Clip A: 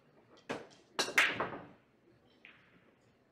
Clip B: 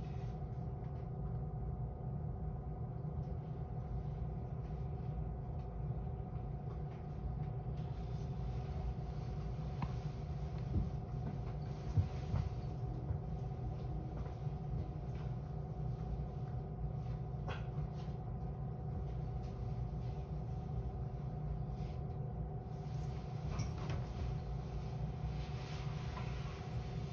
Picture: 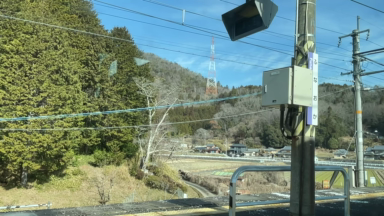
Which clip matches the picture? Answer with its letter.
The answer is B